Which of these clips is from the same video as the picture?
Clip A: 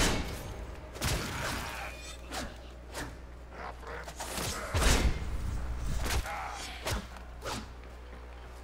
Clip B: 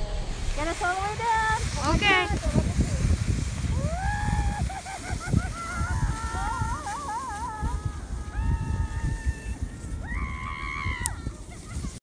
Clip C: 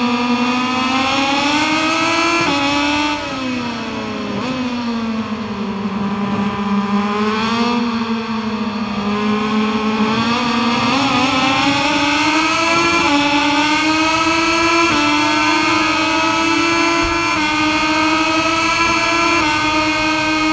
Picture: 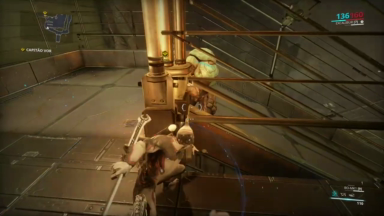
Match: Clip A